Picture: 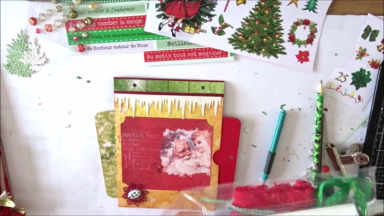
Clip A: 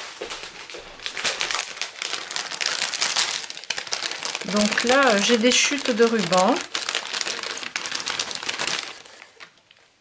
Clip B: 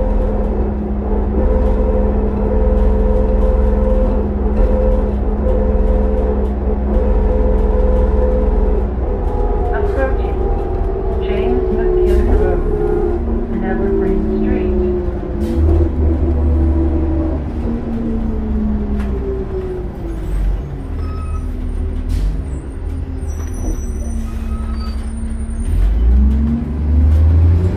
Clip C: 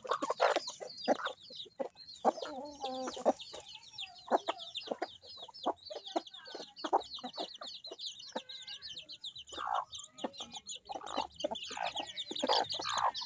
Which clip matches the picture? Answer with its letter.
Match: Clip A